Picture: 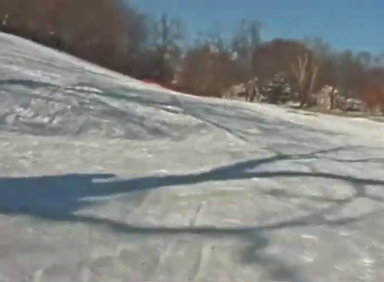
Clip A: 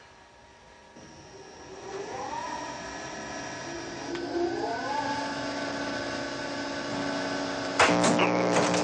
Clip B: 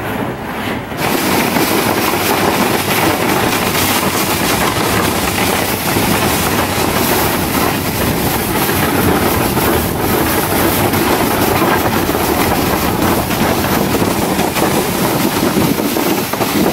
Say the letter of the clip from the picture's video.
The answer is B